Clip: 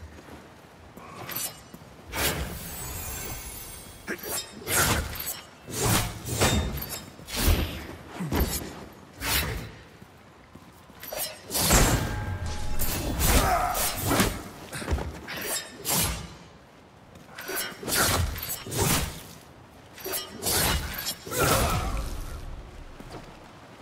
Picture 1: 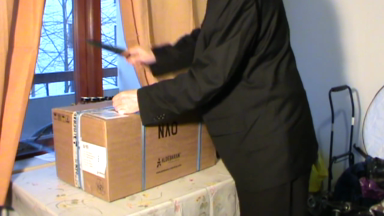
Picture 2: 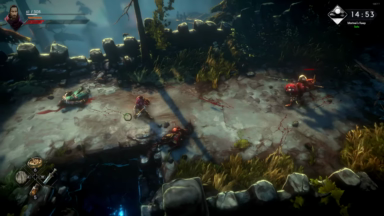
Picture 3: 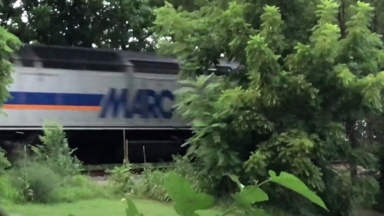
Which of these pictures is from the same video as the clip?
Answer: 2